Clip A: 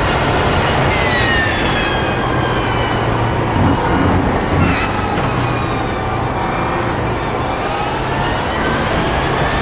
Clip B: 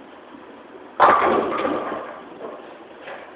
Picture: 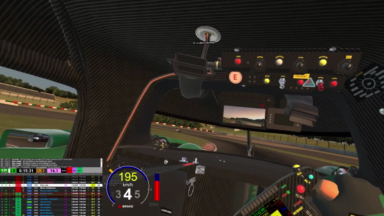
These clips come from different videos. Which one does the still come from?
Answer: A